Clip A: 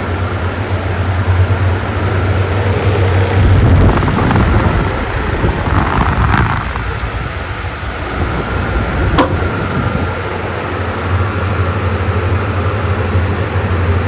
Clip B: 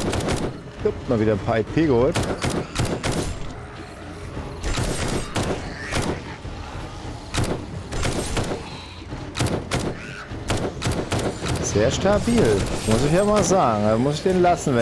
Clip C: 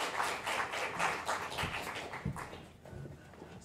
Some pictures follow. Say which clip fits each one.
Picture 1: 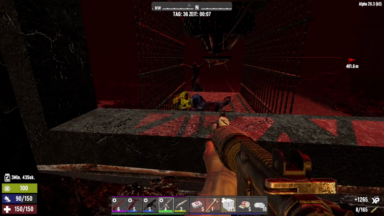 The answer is B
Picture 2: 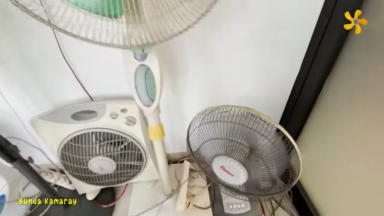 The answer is A